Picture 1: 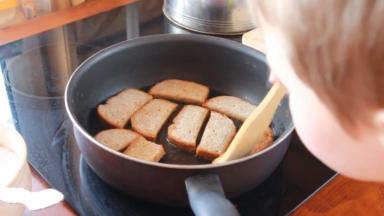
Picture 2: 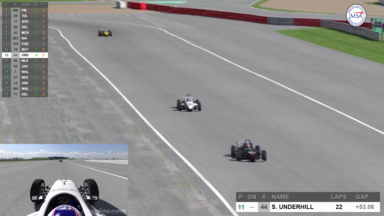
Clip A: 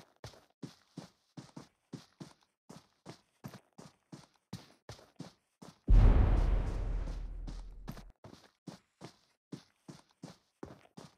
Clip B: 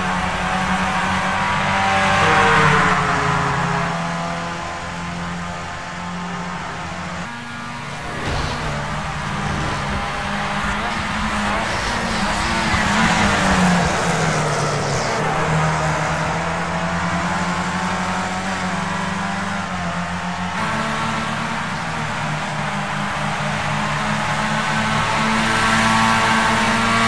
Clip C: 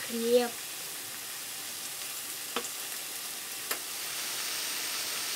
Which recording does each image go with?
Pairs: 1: C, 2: B